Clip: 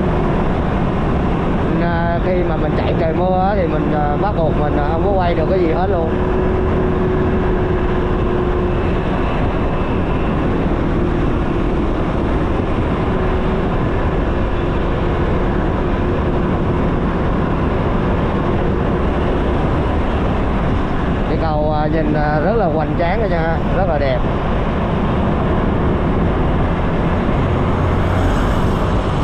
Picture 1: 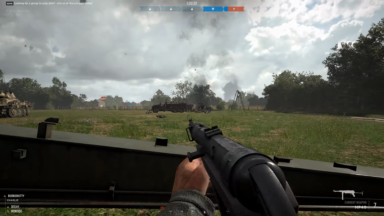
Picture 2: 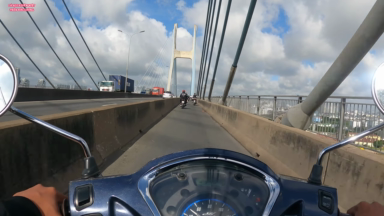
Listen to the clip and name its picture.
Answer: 2